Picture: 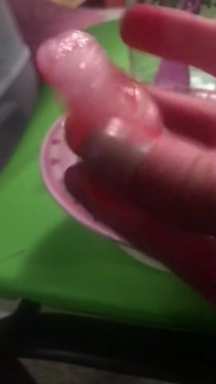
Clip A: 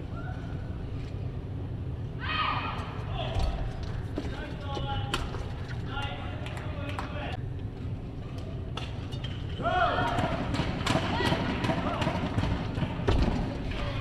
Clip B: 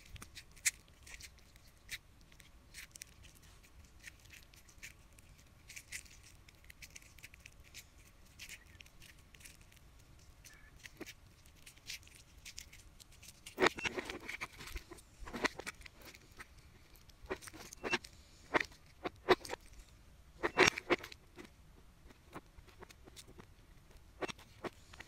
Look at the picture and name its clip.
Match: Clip B